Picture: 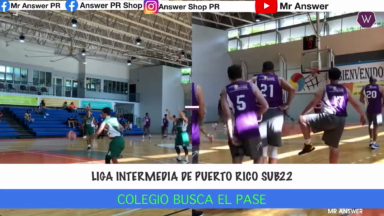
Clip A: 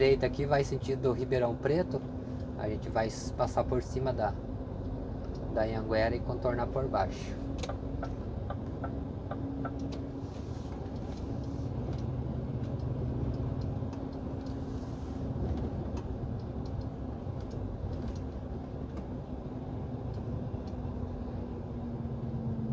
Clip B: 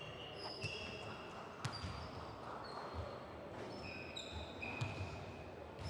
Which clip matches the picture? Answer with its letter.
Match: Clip B